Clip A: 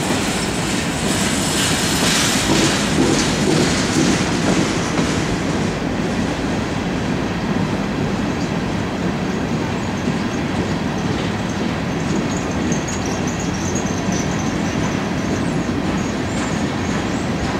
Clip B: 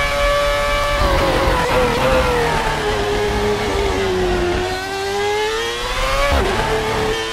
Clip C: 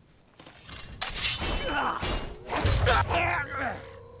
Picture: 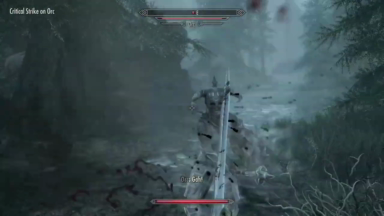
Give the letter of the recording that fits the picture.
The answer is C